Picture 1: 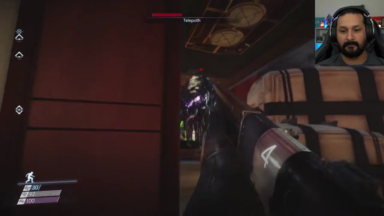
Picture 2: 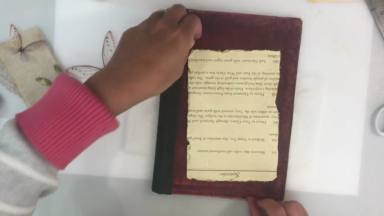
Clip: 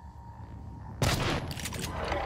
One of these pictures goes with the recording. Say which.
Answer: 1